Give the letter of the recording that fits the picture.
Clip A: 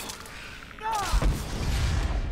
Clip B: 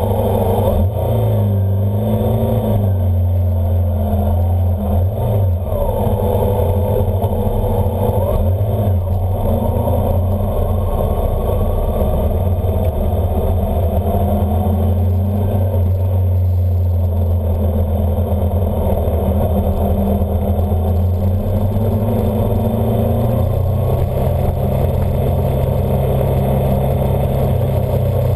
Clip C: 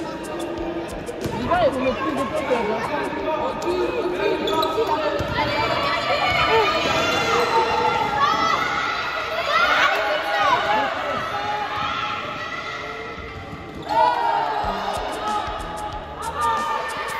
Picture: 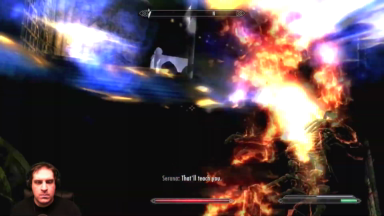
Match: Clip A